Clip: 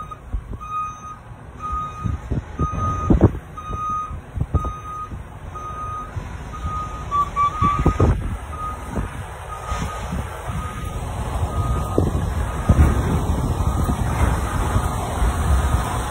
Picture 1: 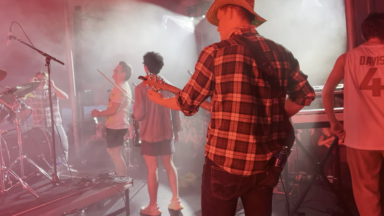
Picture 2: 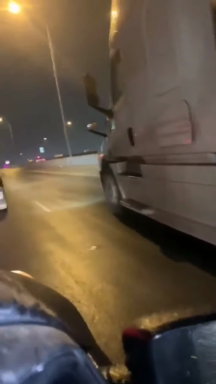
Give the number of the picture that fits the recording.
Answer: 2